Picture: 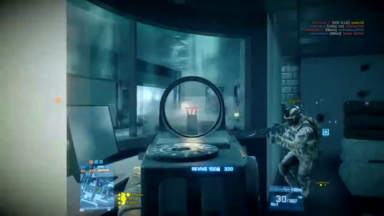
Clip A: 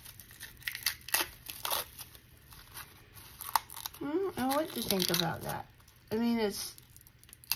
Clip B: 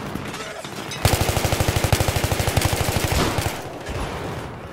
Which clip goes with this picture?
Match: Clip B